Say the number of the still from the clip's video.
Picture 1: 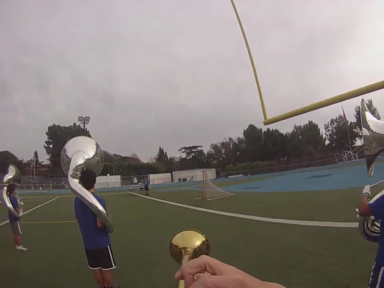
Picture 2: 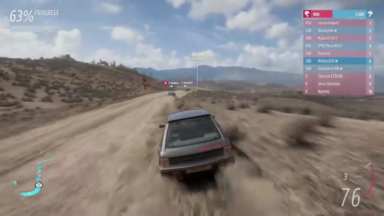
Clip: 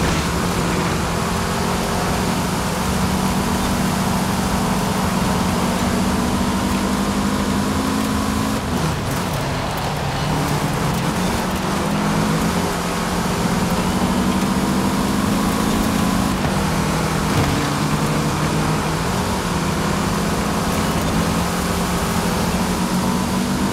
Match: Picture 2